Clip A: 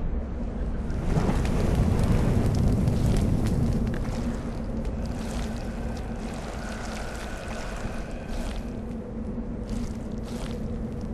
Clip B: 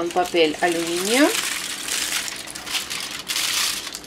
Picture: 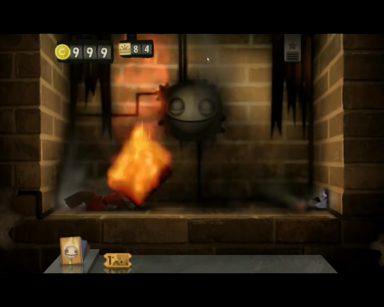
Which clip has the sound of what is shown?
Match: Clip A